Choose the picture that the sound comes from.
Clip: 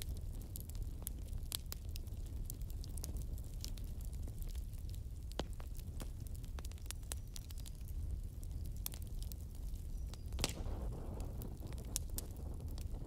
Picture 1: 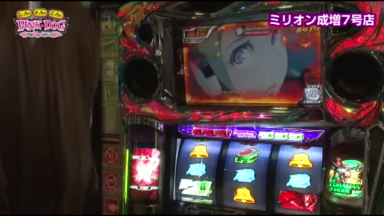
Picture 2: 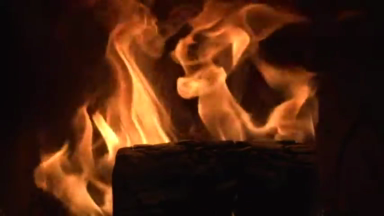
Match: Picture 2